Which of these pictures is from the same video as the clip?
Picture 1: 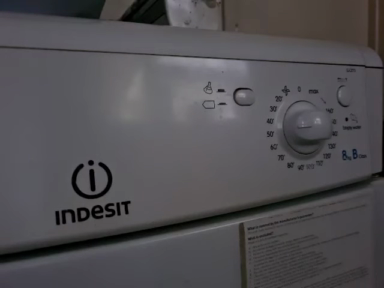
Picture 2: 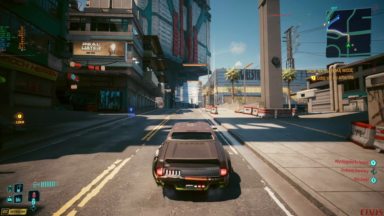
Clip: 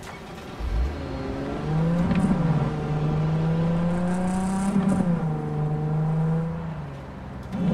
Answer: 2